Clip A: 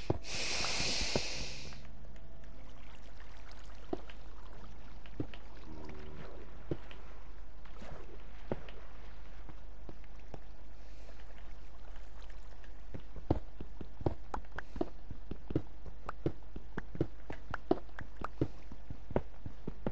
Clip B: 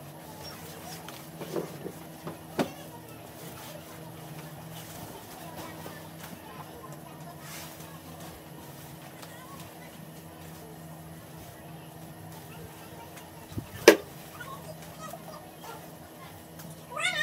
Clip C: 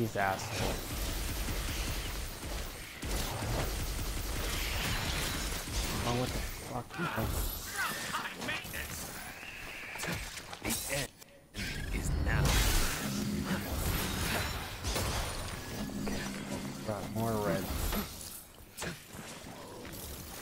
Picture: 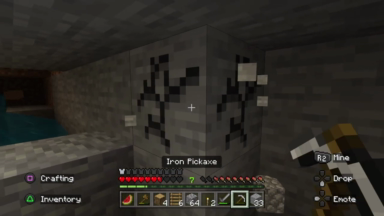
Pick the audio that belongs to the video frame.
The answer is A